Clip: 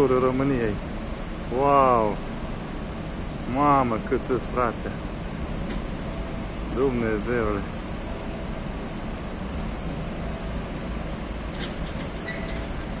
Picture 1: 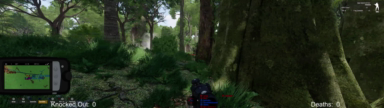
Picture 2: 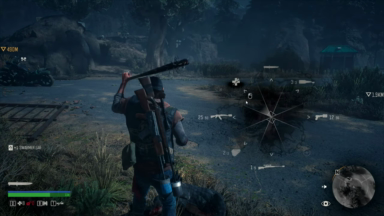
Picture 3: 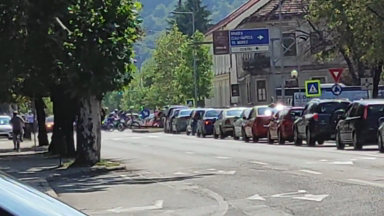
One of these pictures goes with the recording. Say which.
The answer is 3